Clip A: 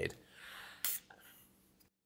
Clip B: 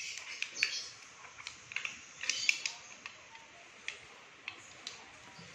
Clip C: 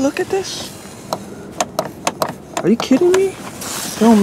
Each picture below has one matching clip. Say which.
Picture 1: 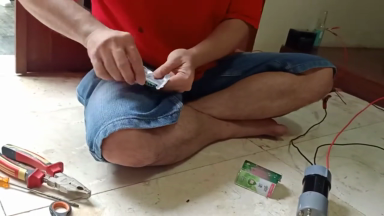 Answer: B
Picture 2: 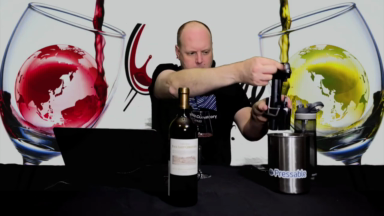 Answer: A